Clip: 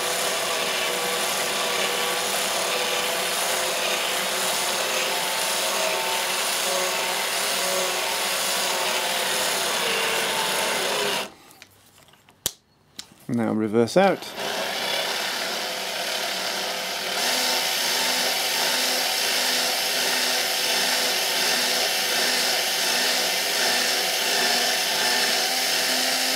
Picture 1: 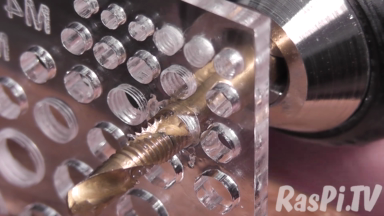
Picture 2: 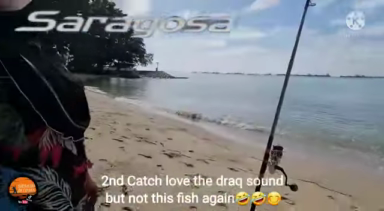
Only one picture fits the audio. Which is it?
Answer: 1